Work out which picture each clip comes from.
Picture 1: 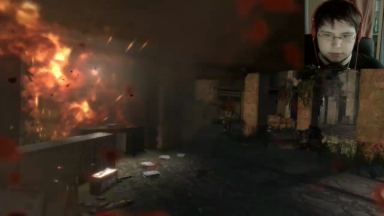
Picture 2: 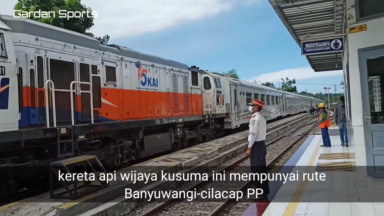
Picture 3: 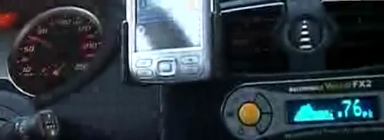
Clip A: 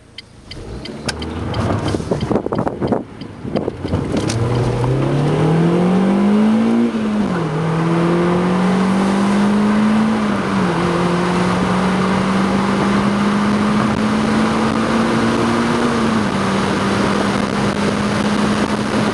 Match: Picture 3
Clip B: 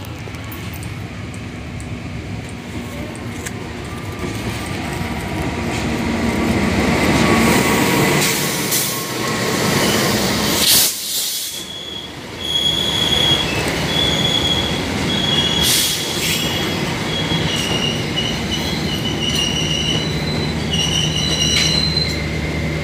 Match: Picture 2